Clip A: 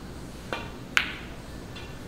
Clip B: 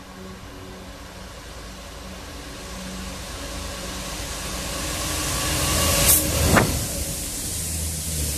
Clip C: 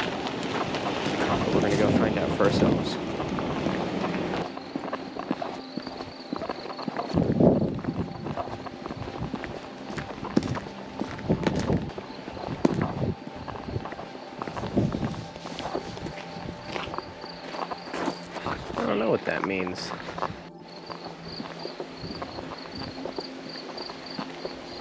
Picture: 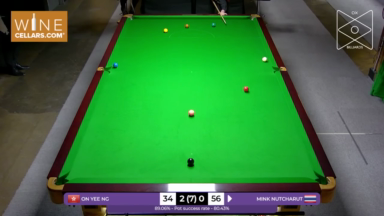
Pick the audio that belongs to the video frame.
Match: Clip A